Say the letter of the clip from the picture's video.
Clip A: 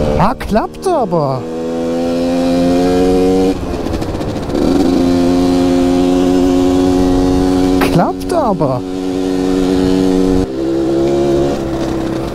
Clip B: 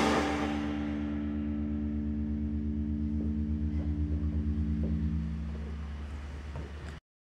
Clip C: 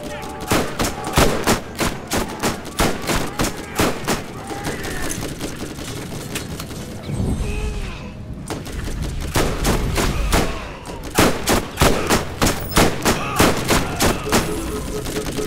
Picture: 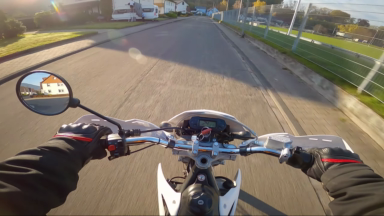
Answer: A